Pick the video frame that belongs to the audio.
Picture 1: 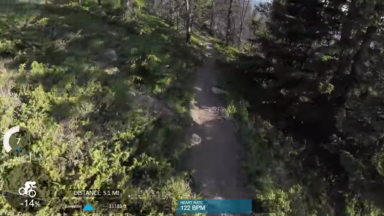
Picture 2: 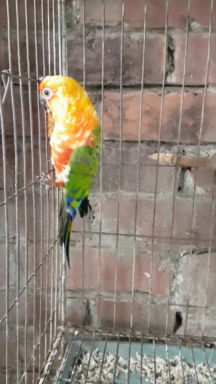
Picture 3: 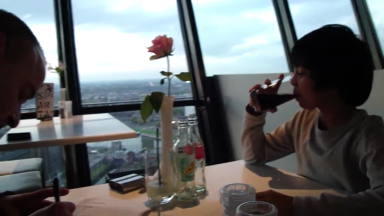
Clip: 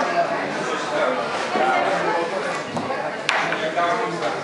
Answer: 3